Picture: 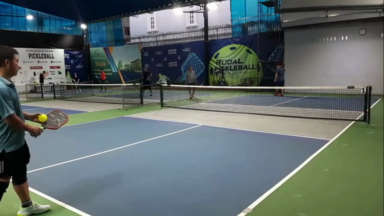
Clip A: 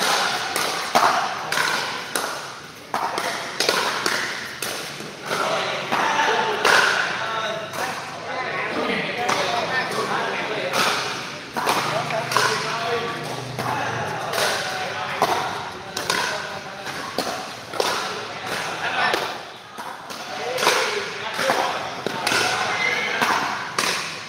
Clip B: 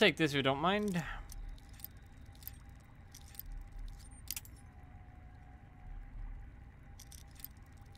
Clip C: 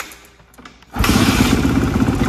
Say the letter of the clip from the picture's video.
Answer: A